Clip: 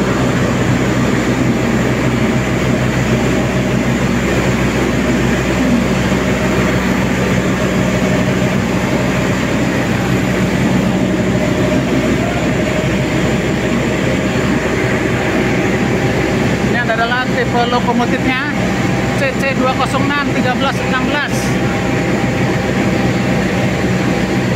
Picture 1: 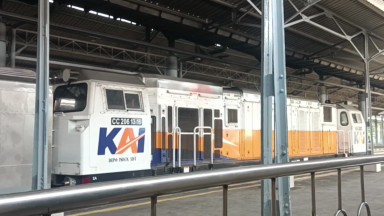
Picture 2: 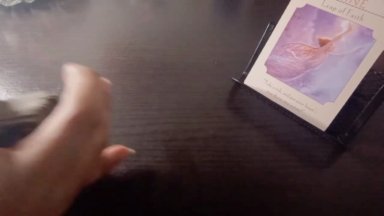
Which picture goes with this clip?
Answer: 1